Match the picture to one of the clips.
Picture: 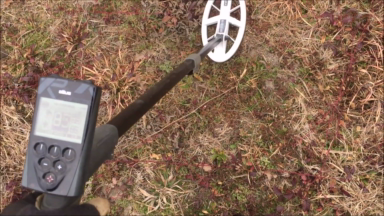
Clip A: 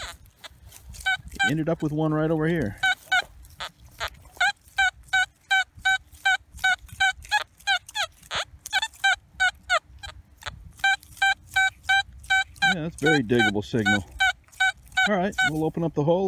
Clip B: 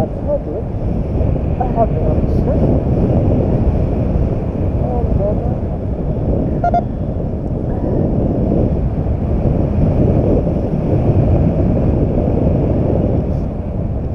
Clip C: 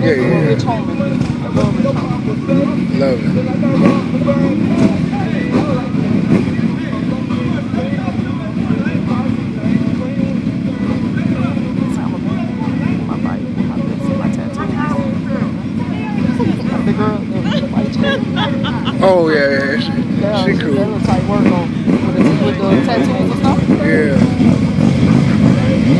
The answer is A